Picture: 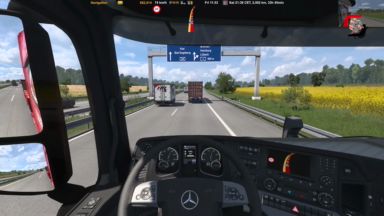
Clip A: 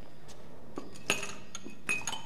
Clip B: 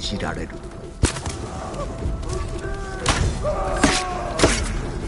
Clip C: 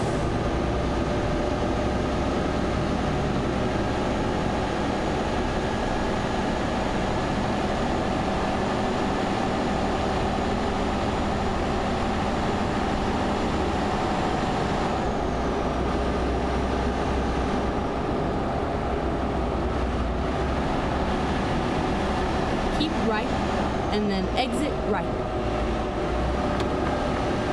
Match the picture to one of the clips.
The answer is C